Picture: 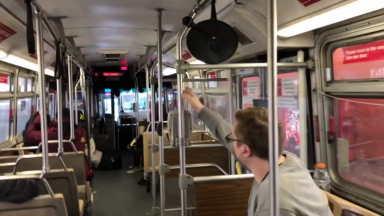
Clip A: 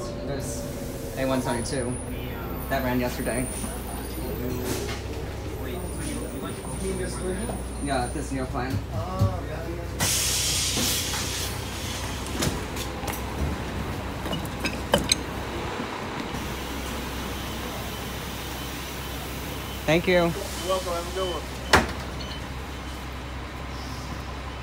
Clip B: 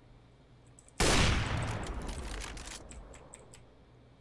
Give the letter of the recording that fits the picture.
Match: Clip A